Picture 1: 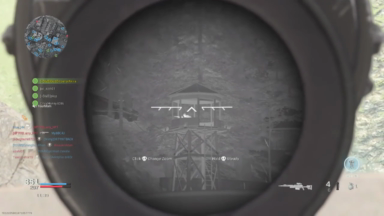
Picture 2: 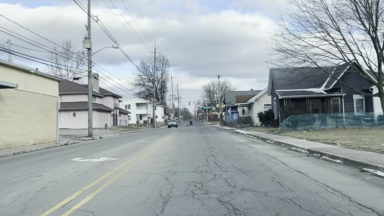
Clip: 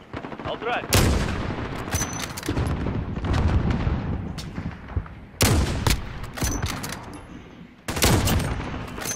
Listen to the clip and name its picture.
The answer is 1